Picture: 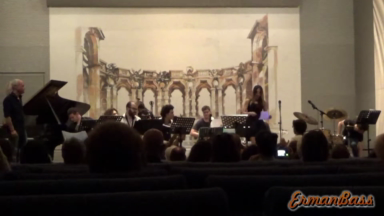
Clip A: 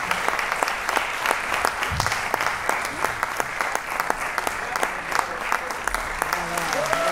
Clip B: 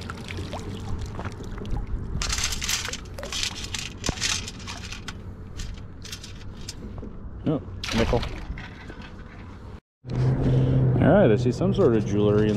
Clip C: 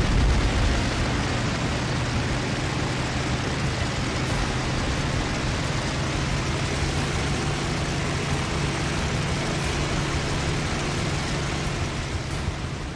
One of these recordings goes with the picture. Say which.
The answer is A